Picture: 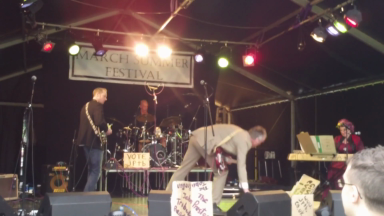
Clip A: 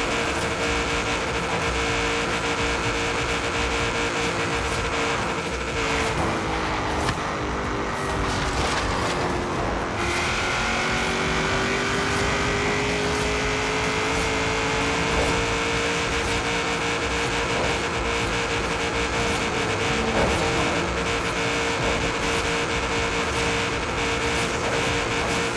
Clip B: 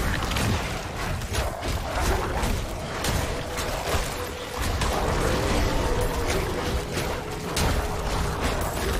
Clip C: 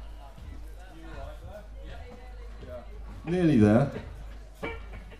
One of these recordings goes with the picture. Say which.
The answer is C